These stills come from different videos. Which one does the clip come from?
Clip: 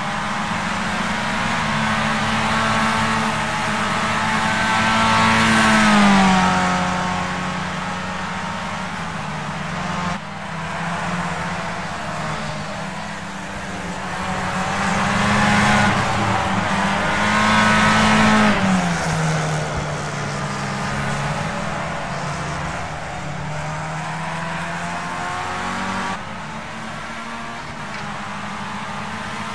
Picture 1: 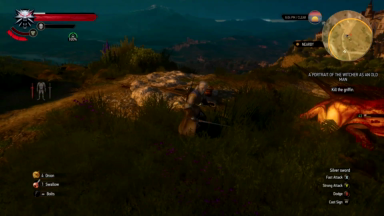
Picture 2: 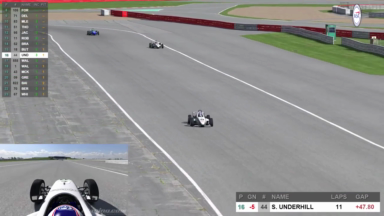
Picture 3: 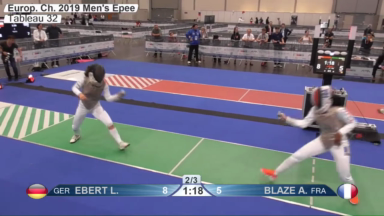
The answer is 2